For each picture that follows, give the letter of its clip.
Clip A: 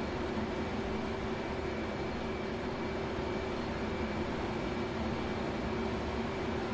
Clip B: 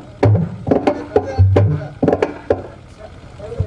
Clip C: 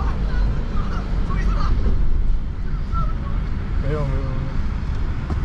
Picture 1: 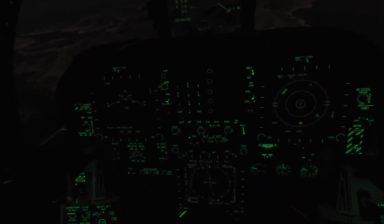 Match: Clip A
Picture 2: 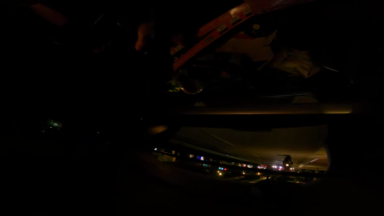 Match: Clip C